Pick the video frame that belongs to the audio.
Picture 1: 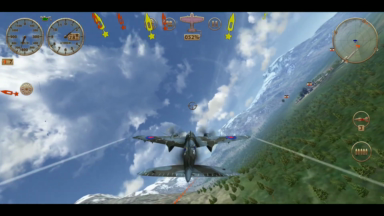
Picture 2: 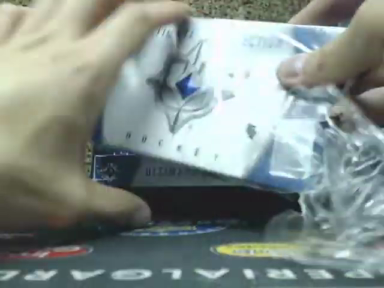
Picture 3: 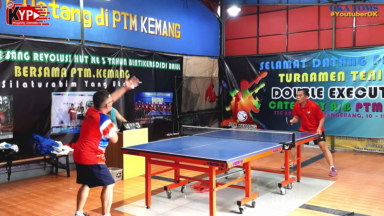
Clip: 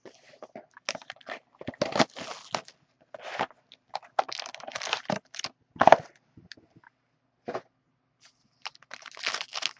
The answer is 2